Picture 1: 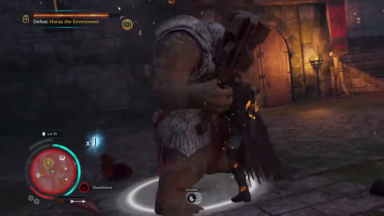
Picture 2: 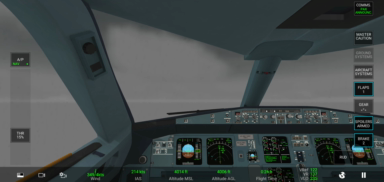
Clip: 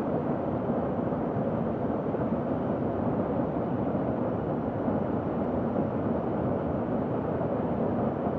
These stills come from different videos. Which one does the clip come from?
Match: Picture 2